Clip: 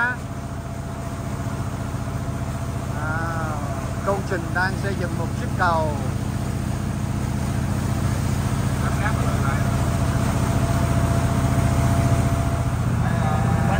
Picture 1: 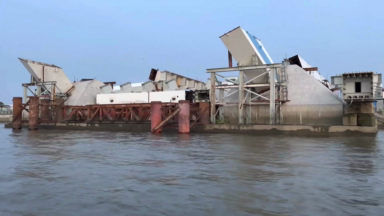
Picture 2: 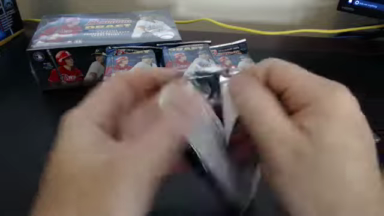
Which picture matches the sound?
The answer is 1